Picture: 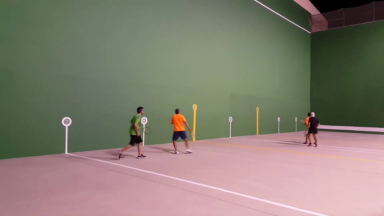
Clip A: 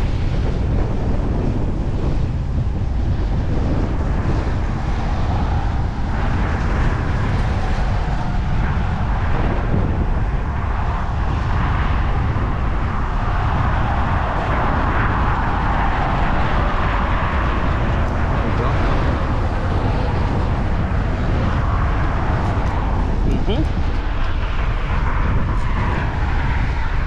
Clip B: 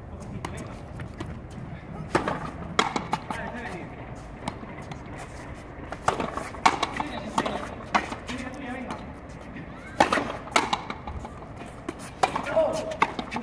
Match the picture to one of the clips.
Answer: B